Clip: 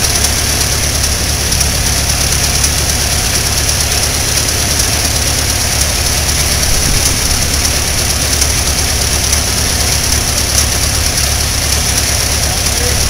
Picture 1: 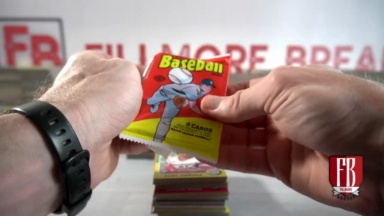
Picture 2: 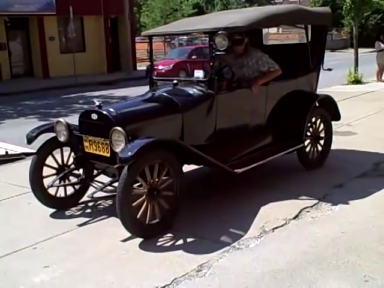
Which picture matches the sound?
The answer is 2